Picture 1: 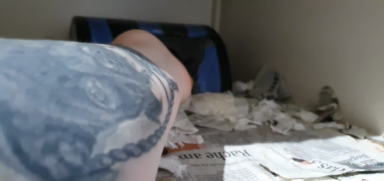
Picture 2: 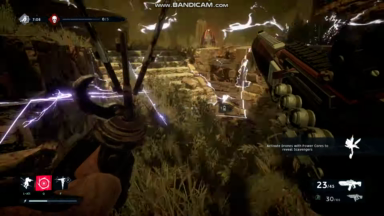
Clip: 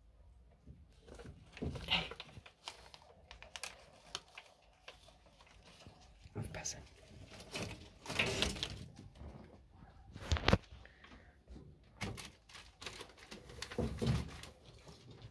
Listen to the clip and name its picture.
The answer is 1